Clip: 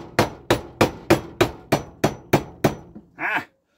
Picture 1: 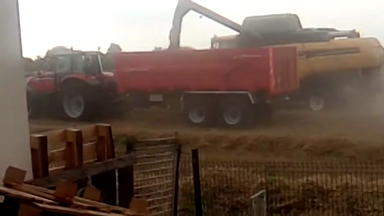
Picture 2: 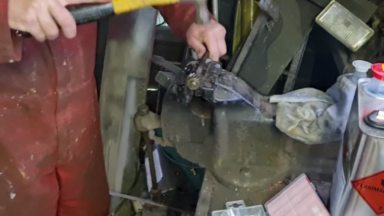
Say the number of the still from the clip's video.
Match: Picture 2